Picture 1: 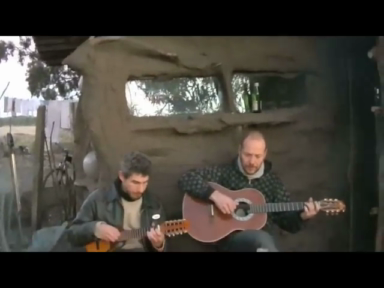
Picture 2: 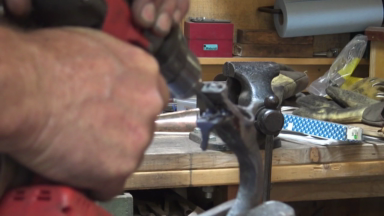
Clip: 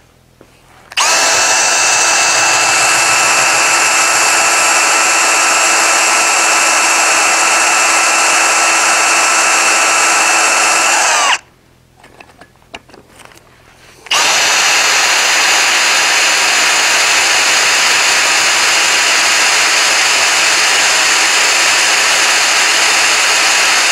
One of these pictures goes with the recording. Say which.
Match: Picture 2